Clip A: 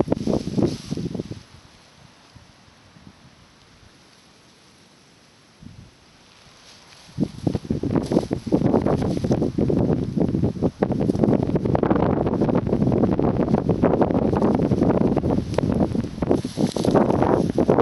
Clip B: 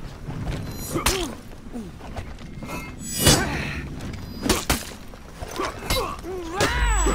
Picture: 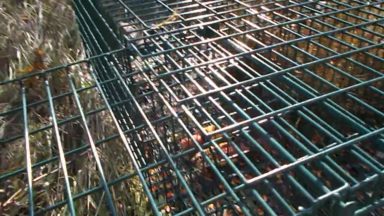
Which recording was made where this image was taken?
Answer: A